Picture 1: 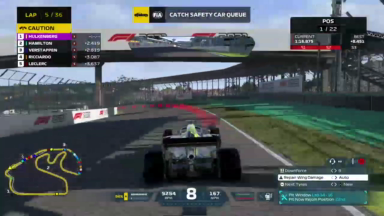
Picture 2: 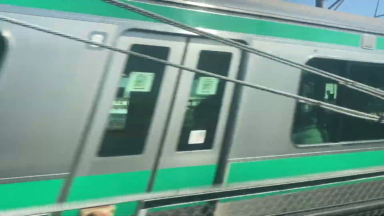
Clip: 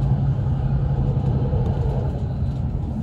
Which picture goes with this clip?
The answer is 2